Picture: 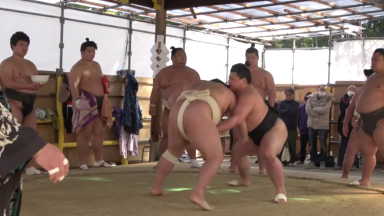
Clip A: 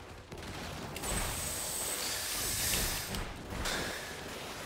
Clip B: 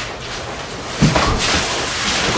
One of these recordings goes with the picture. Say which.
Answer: B